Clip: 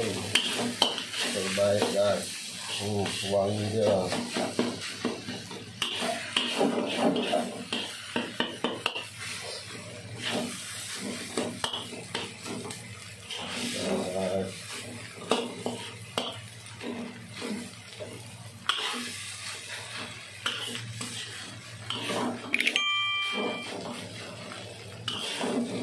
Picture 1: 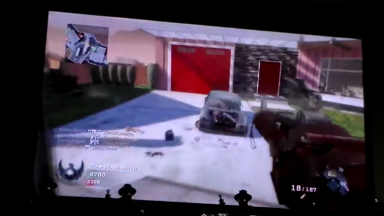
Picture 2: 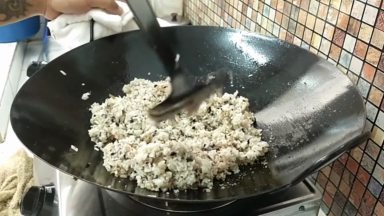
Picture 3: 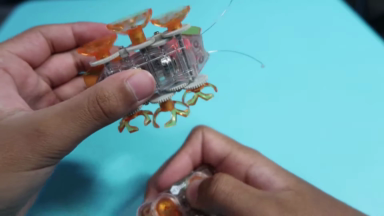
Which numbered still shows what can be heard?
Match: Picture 2